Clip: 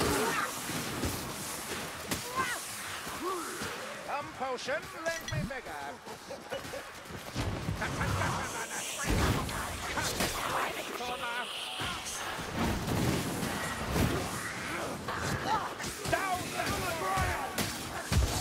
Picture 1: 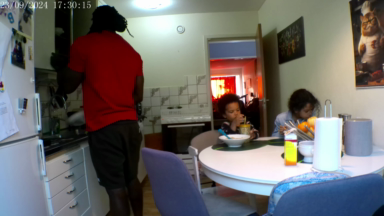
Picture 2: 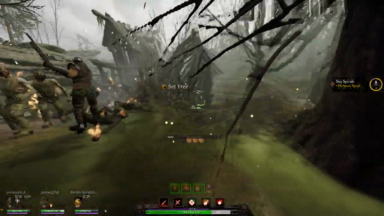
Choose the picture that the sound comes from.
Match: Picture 2